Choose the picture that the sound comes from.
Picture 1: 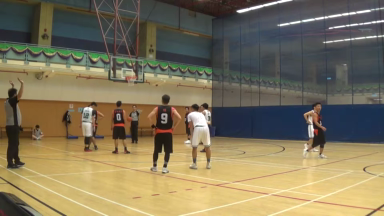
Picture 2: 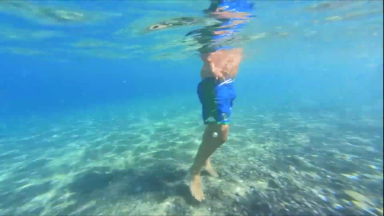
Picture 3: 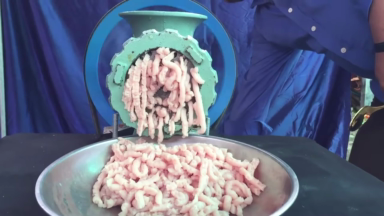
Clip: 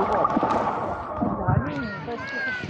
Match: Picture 2